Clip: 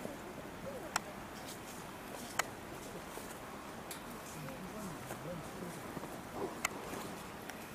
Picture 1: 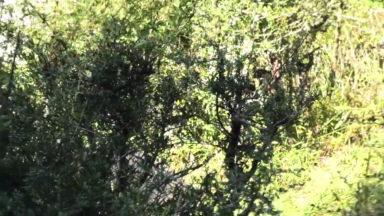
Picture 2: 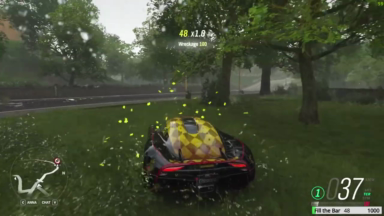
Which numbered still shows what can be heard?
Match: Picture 1